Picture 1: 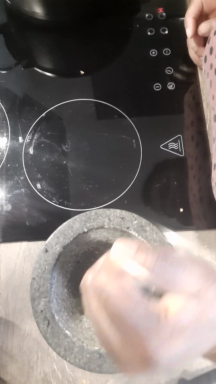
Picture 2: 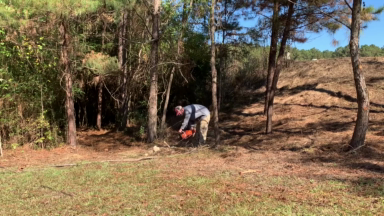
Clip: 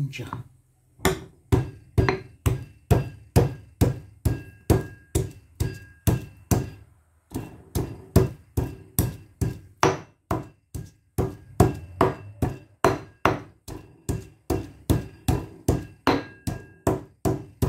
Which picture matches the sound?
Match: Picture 1